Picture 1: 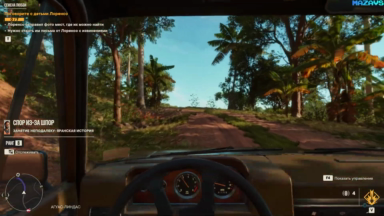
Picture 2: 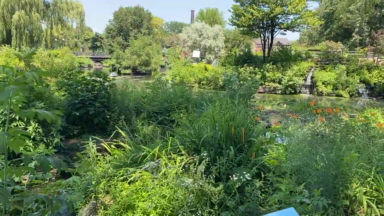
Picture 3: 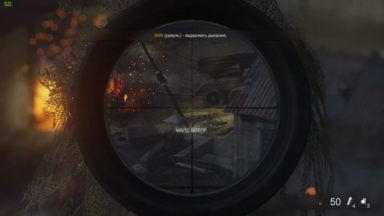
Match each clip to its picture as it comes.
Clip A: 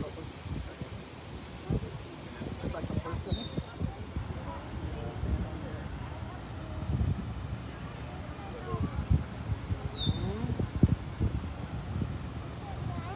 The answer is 2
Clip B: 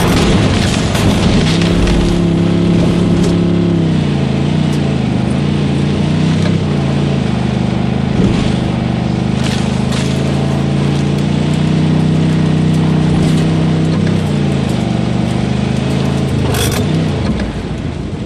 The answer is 1